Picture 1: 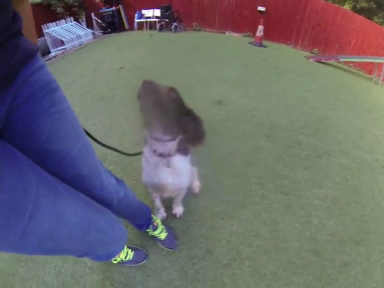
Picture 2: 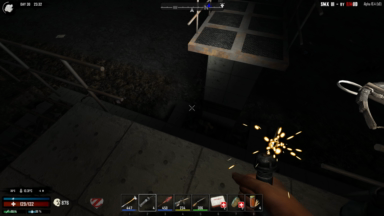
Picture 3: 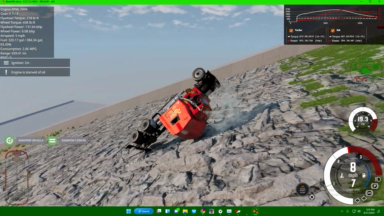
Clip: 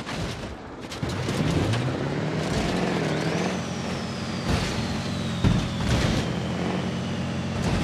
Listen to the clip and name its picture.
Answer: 3